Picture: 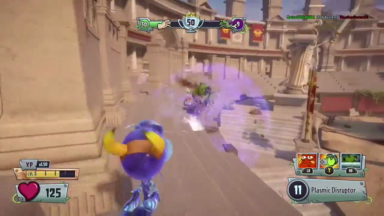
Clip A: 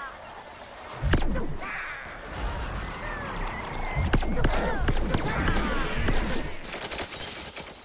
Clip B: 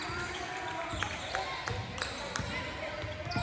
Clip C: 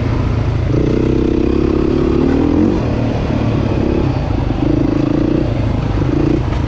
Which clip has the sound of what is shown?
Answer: A